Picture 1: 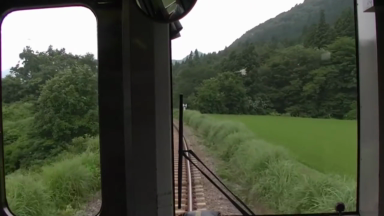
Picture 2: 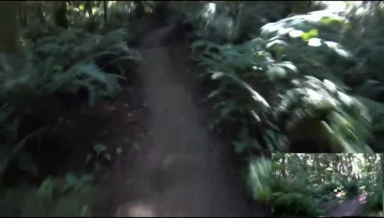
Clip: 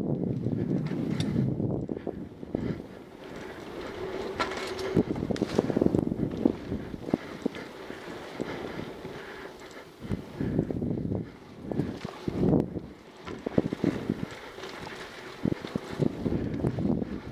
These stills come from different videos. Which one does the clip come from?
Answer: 2